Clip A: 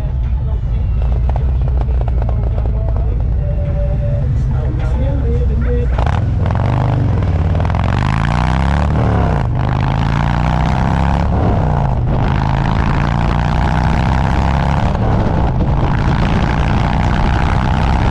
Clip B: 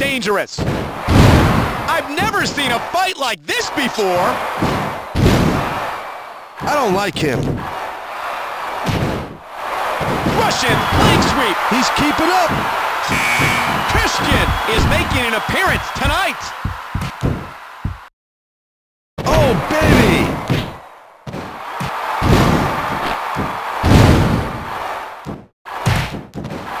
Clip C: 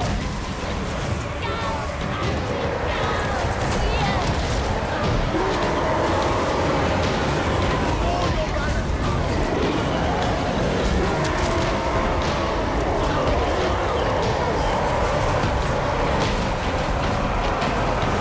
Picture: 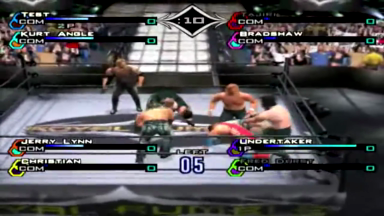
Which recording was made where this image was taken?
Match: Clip B